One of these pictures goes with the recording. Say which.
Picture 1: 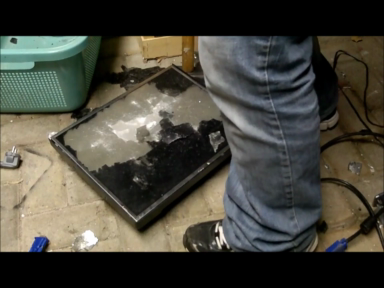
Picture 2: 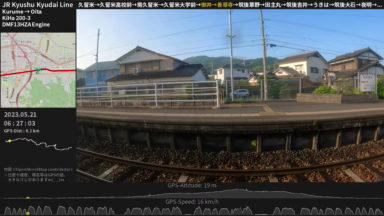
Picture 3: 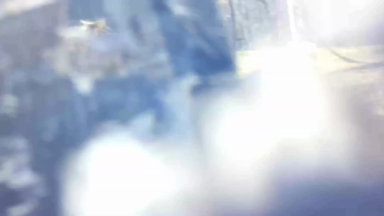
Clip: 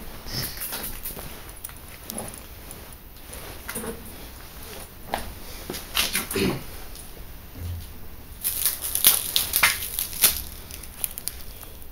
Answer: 1